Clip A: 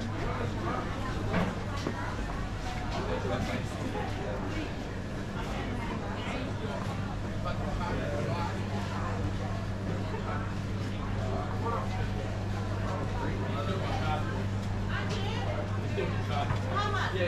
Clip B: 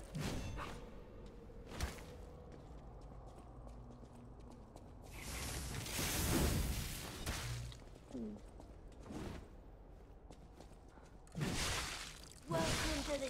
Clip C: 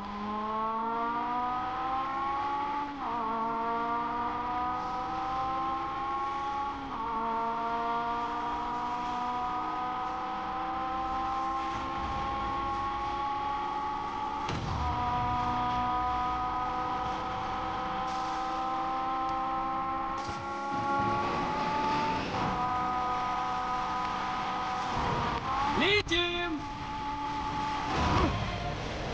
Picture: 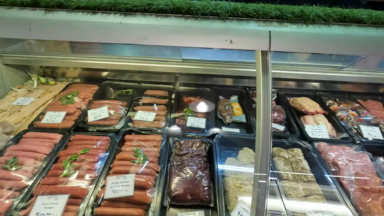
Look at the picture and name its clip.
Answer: A